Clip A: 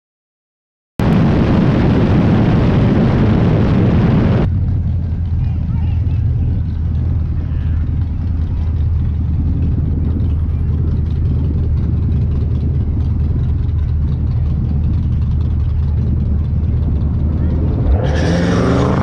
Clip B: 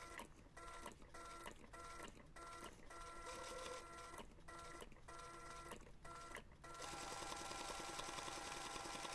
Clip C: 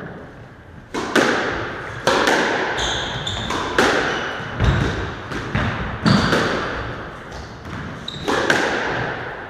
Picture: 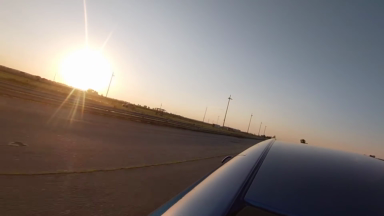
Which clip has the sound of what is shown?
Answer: A